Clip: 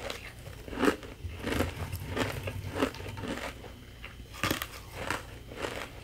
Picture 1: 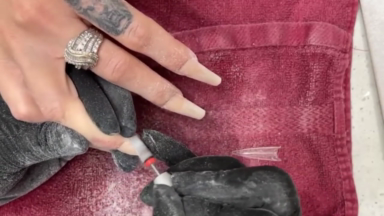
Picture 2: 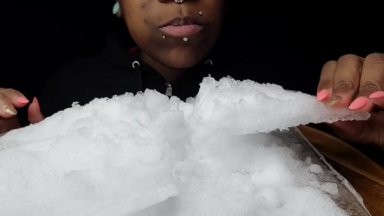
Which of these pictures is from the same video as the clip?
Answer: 2